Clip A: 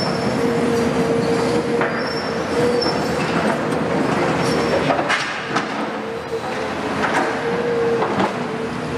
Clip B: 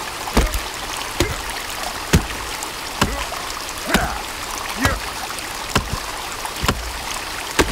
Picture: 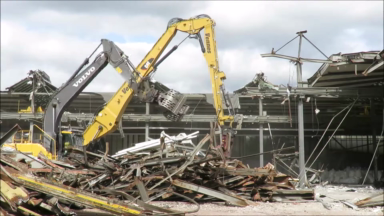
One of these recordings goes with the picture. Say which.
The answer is A